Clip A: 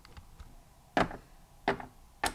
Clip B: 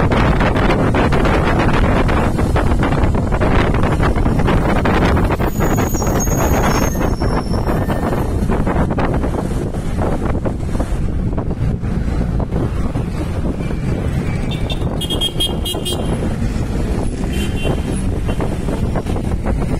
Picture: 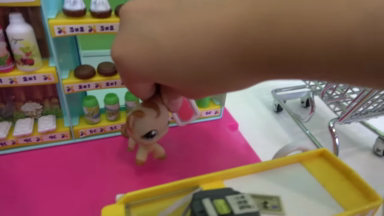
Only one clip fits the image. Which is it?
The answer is A